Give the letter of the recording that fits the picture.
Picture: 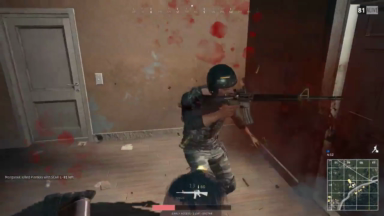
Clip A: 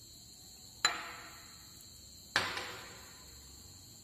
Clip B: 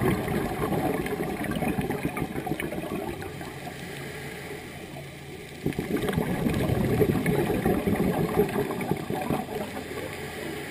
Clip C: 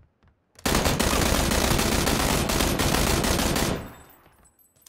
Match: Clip C